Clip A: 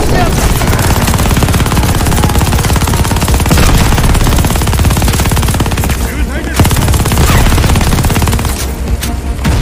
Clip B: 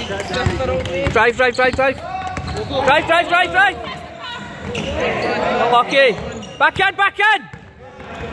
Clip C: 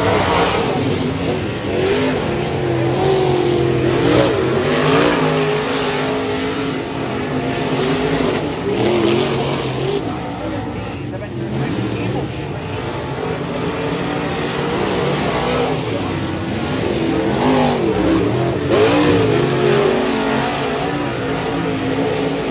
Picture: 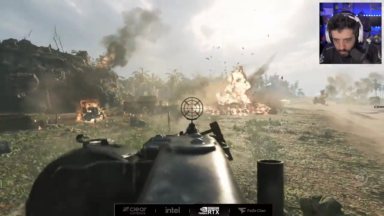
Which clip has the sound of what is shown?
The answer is A